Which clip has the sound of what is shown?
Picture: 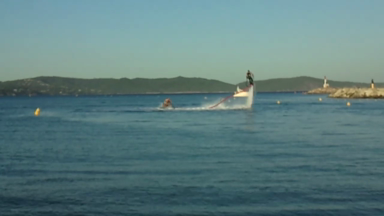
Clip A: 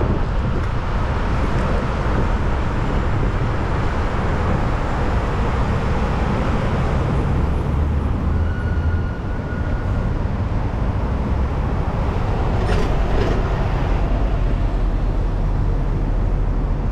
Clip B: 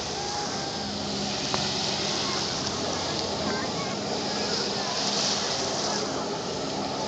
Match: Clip B